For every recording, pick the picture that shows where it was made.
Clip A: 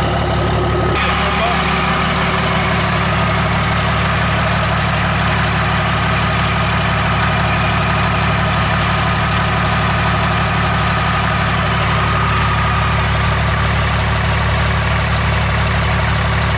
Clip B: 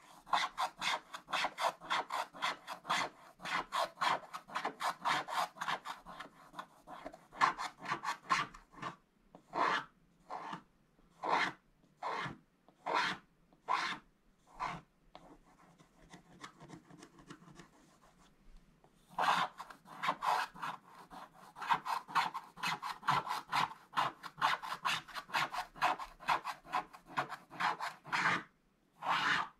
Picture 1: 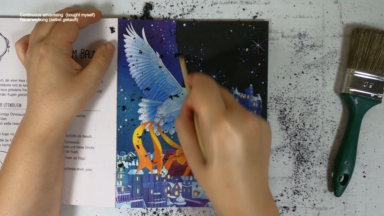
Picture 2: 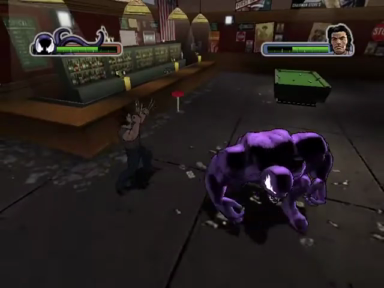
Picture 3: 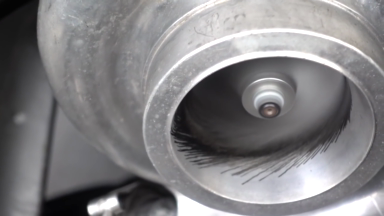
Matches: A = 3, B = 1